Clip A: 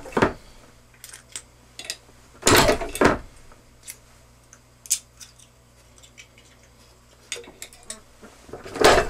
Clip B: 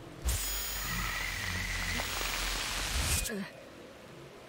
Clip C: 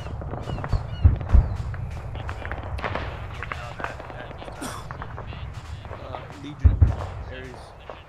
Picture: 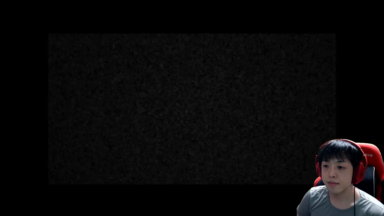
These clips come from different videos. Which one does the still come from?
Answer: B